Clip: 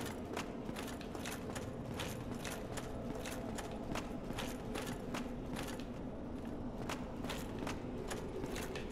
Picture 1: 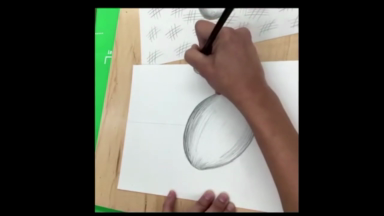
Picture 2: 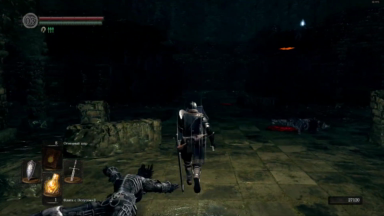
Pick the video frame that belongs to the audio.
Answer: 2